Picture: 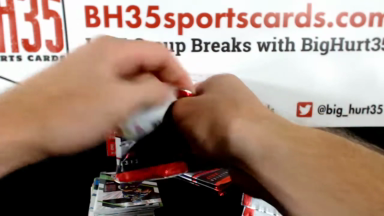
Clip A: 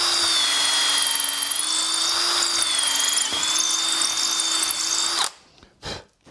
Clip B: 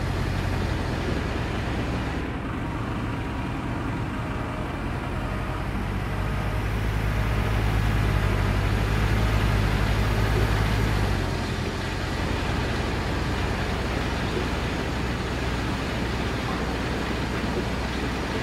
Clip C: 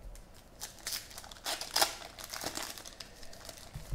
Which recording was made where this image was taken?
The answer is C